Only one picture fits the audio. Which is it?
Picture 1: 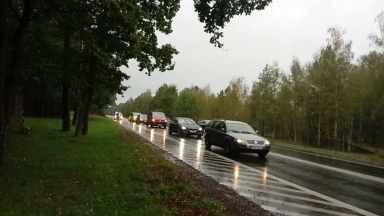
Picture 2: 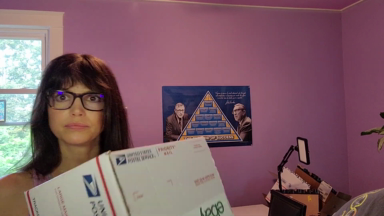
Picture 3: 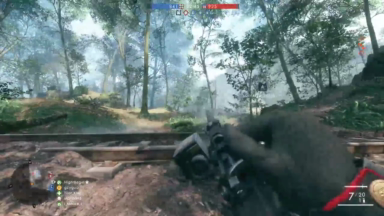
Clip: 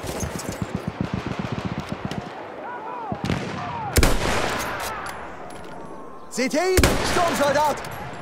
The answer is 3